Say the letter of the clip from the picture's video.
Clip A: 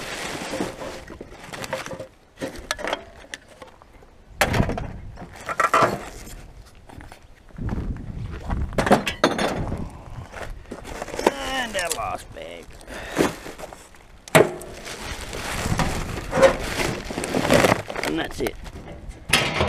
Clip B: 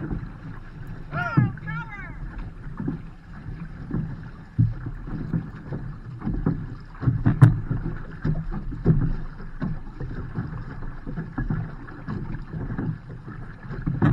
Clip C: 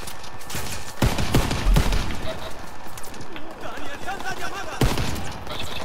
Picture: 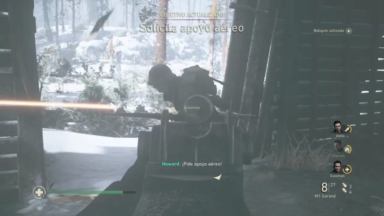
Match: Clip C